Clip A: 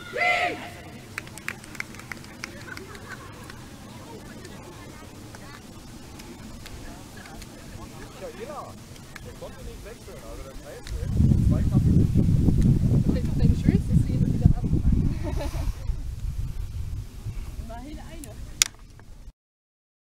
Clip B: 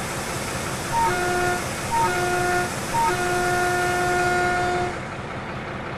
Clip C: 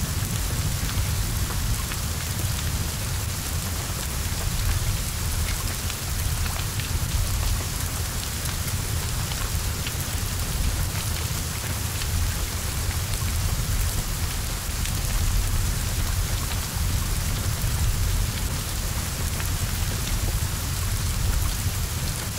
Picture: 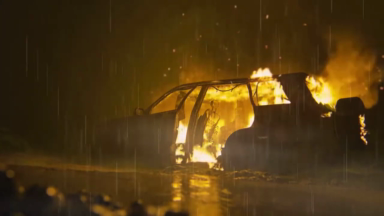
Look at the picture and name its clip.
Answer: C